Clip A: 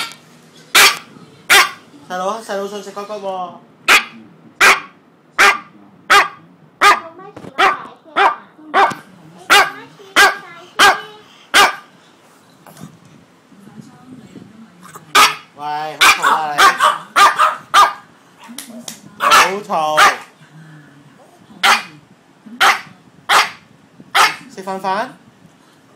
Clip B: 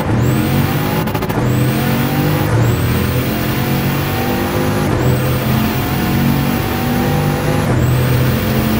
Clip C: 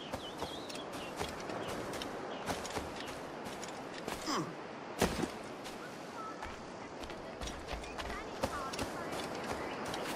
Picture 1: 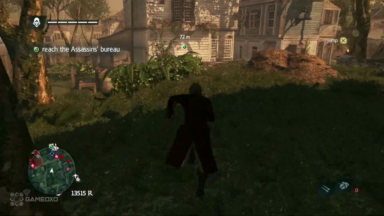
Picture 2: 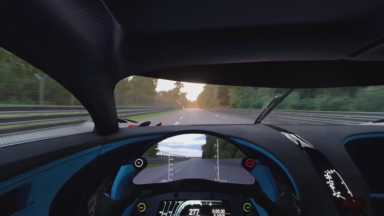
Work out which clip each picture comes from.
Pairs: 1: C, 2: B